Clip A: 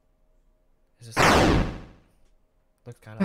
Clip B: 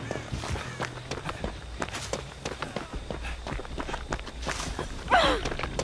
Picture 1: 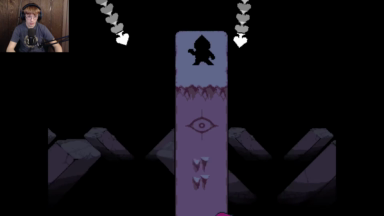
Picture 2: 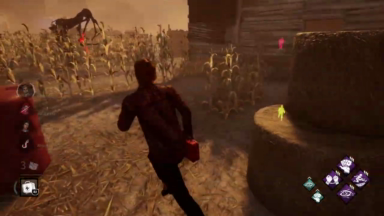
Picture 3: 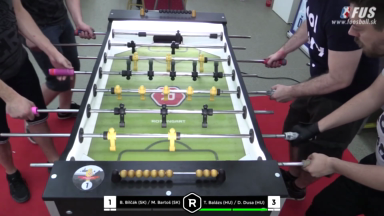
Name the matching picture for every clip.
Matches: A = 1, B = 2